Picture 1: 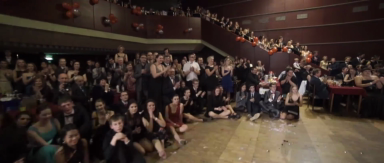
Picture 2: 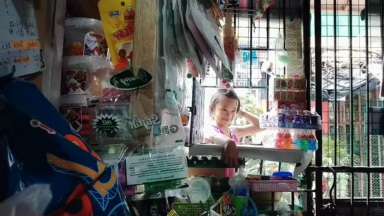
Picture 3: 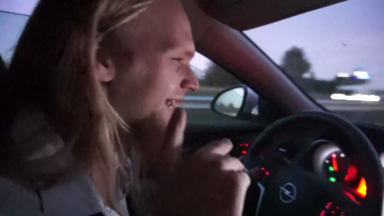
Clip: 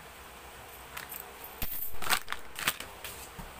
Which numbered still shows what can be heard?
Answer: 2